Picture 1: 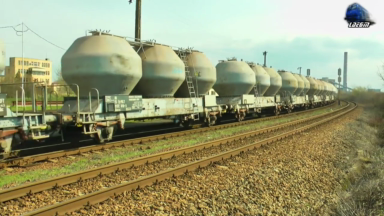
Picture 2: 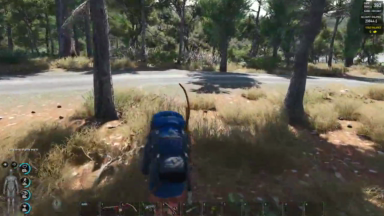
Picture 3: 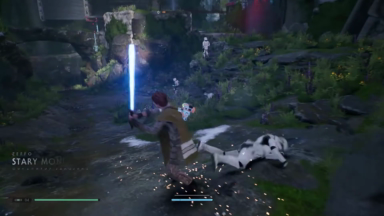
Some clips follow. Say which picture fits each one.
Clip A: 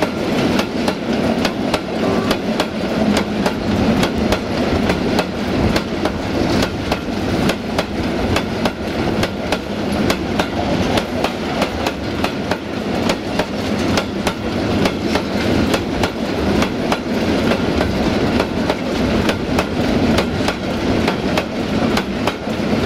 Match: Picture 1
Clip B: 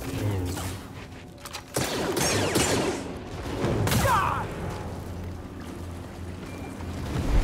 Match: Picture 3